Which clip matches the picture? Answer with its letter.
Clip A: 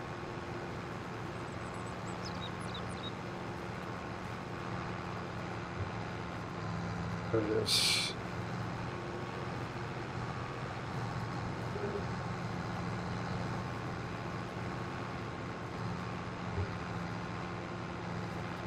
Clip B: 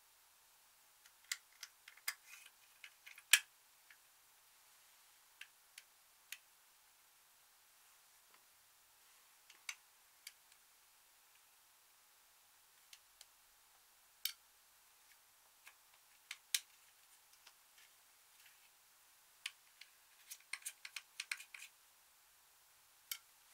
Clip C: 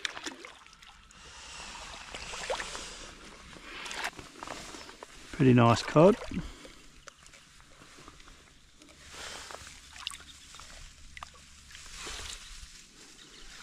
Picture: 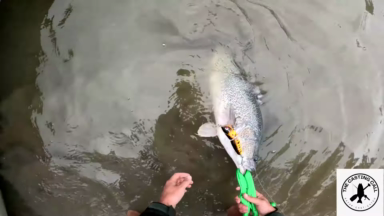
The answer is C